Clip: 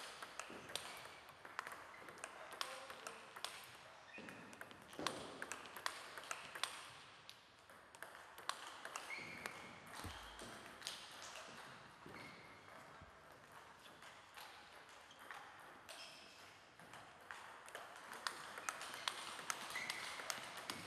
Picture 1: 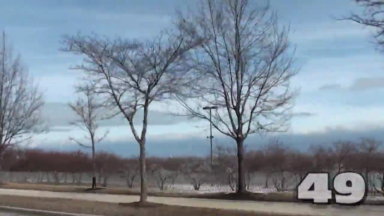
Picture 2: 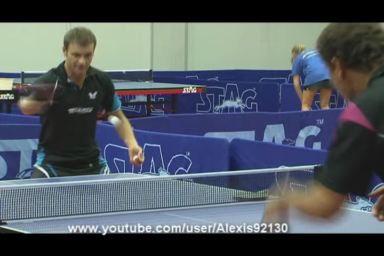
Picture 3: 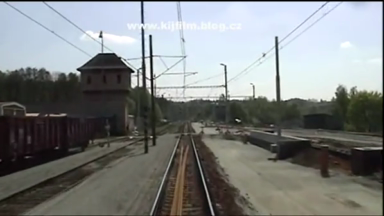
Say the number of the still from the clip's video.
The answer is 2